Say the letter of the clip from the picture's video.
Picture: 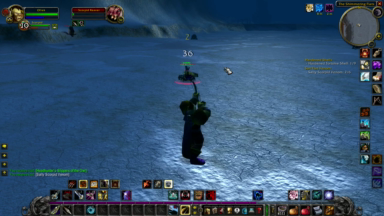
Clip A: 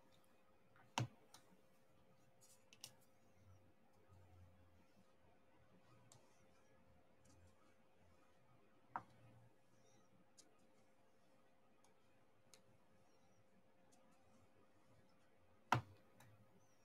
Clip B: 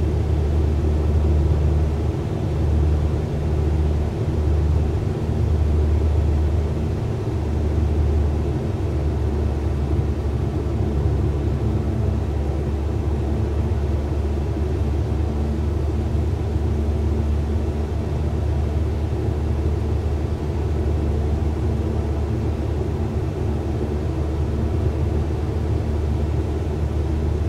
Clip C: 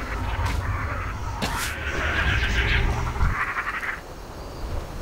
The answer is C